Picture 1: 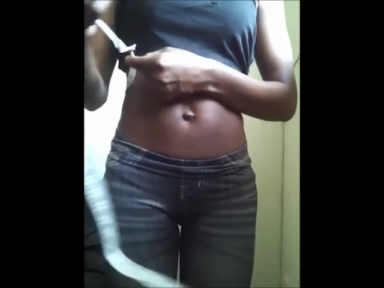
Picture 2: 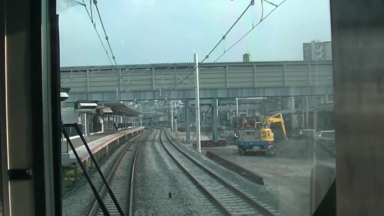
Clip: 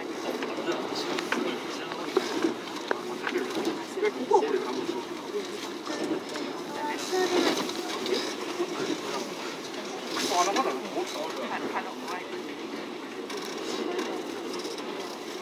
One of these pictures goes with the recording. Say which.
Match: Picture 2